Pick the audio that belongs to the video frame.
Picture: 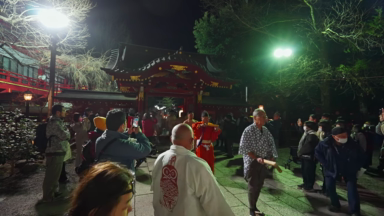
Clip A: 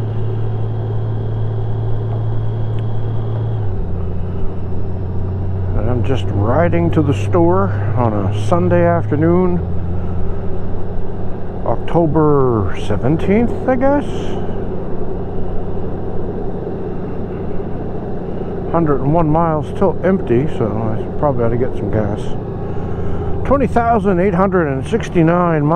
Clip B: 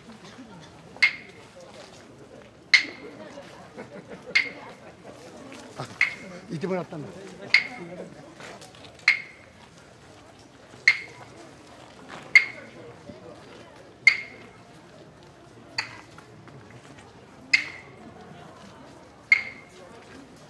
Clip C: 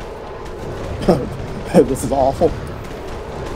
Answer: B